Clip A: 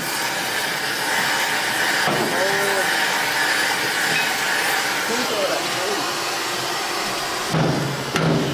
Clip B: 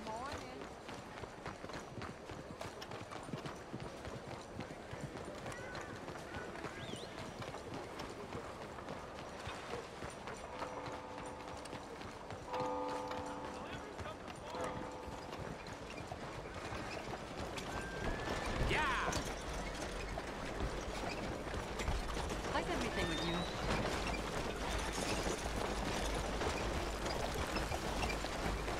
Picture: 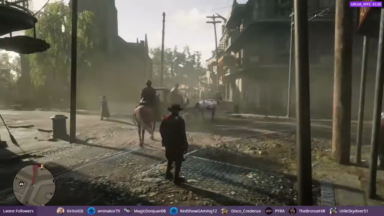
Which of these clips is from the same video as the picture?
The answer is B